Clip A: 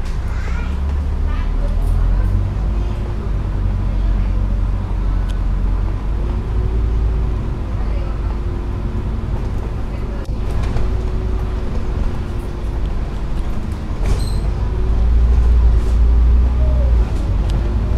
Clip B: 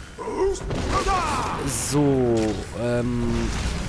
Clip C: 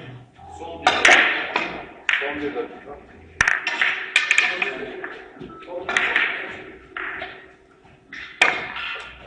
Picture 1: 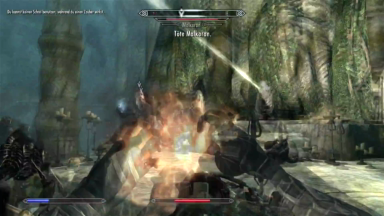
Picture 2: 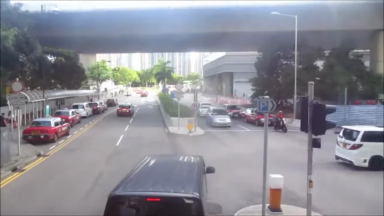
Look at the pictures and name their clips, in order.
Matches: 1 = B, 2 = A